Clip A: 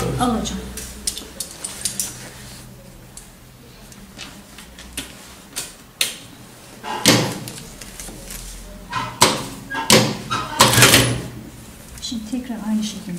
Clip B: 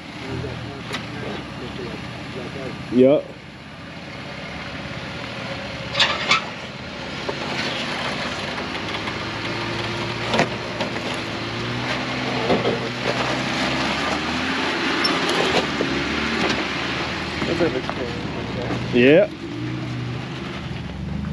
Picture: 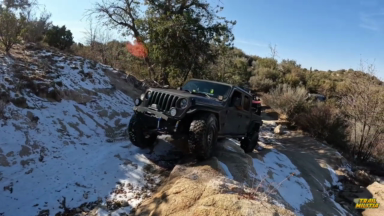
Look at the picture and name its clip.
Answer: B